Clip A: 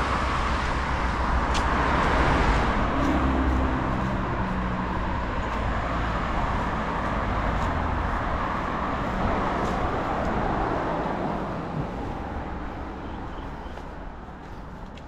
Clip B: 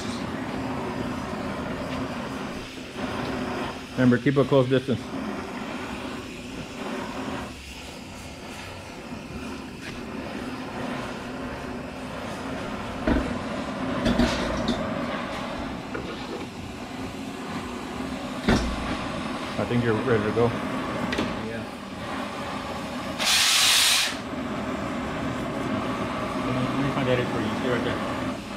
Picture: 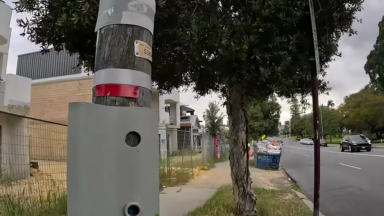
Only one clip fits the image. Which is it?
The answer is A